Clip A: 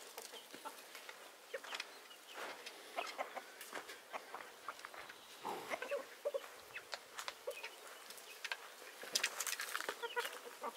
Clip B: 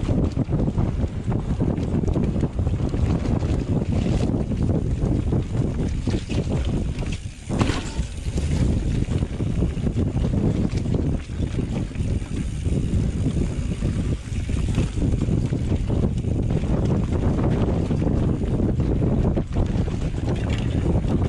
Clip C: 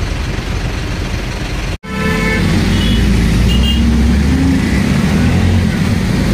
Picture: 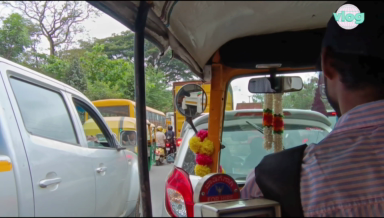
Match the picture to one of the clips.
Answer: C